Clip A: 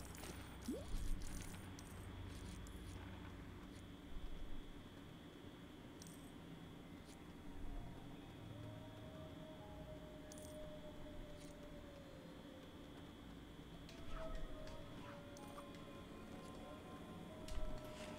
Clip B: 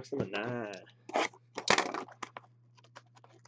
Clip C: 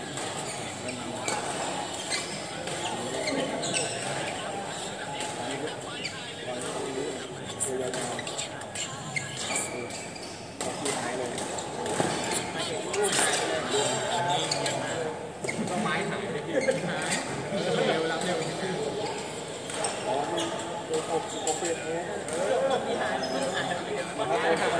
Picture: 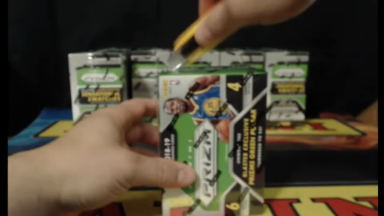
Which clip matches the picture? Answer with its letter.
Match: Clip B